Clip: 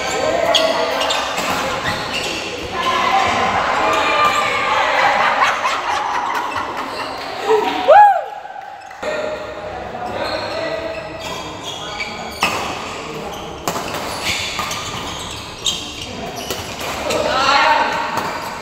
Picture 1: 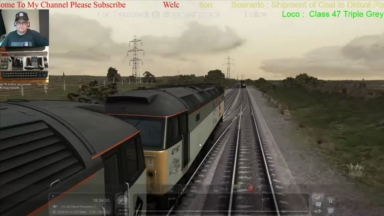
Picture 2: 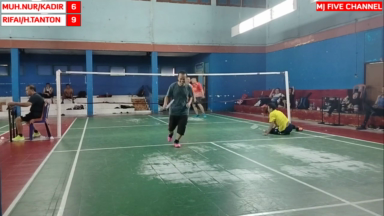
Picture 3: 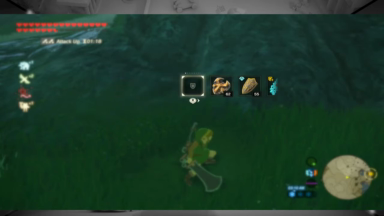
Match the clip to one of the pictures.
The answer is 2